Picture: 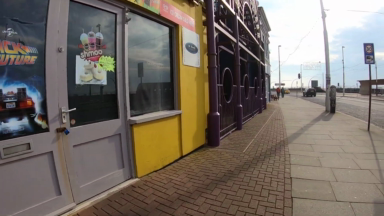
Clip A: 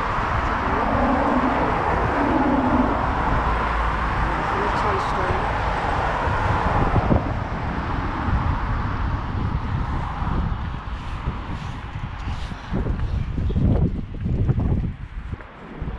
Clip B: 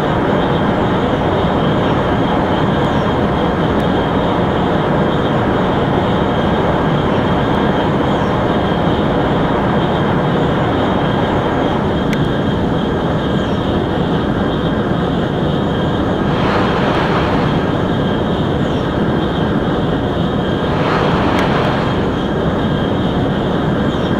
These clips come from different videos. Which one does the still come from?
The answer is A